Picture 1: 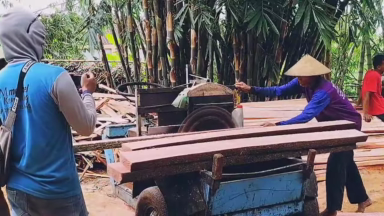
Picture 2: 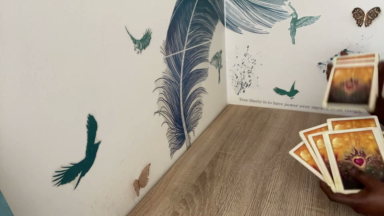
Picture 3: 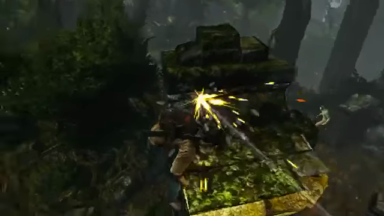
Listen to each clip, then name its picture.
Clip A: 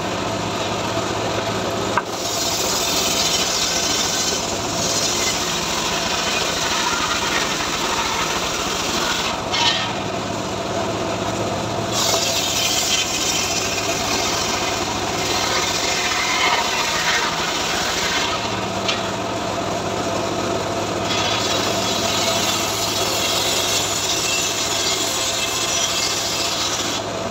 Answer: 1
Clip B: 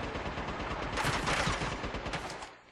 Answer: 3